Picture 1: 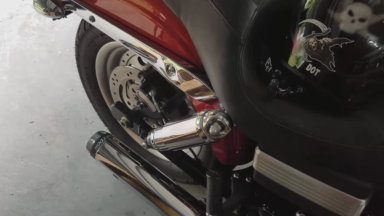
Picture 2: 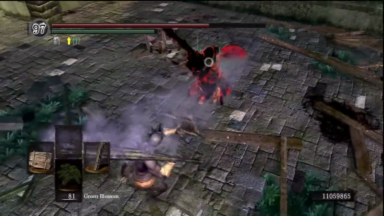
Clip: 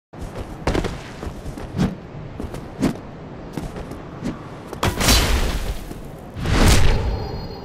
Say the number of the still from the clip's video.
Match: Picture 2